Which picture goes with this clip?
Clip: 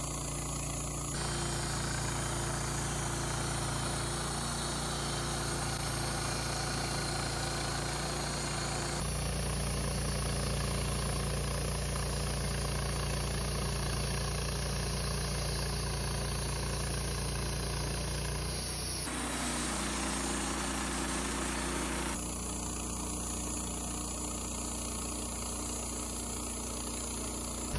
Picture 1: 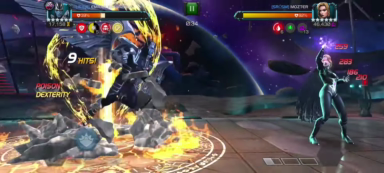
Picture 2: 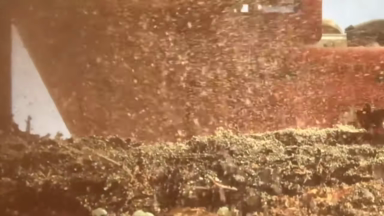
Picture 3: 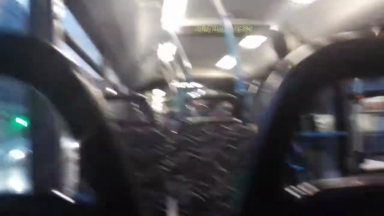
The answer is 2